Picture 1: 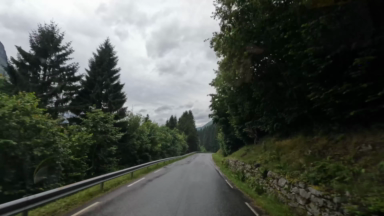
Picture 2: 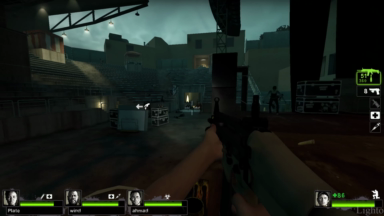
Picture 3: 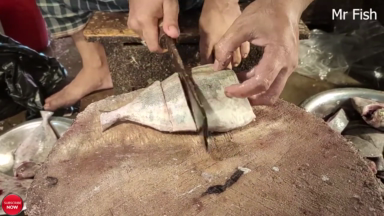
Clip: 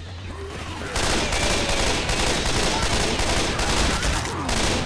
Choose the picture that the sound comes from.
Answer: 2